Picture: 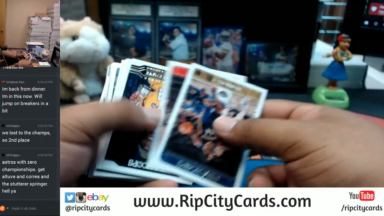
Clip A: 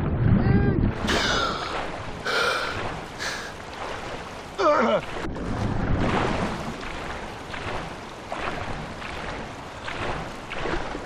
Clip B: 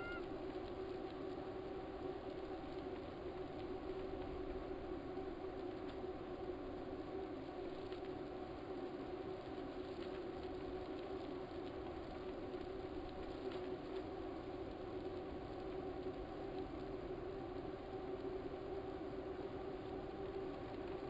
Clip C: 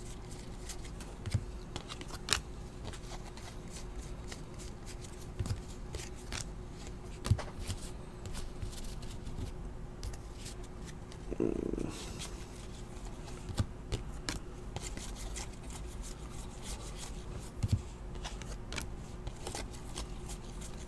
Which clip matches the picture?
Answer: C